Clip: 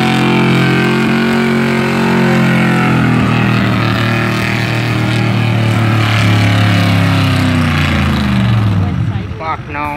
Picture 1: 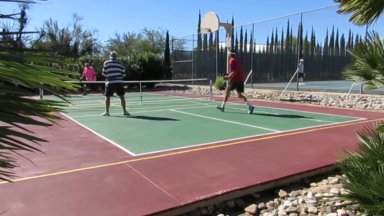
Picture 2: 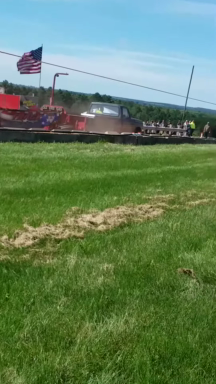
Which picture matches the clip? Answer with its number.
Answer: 2